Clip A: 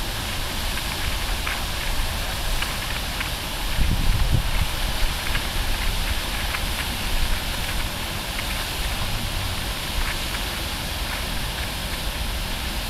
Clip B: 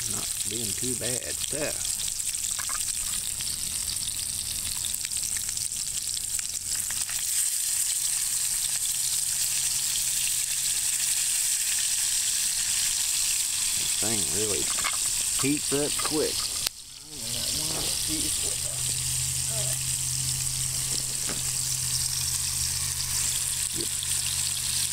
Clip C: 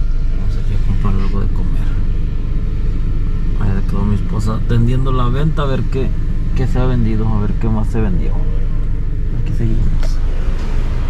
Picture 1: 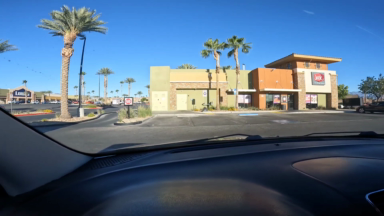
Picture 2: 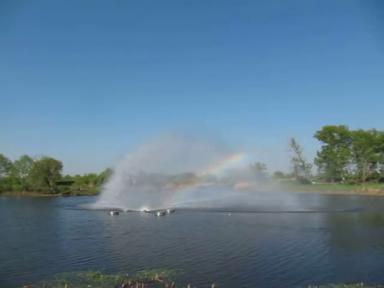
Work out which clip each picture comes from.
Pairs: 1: C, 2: A